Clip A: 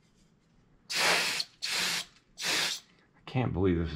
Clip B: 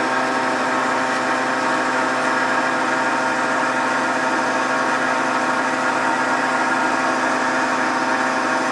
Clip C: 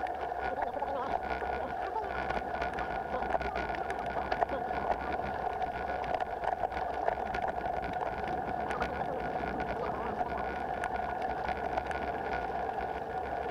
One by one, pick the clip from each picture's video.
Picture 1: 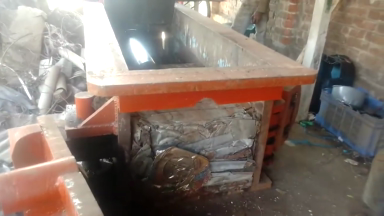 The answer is B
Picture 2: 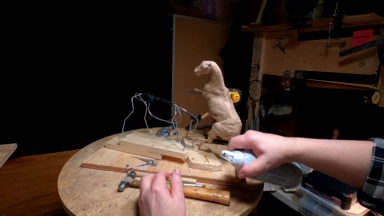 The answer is A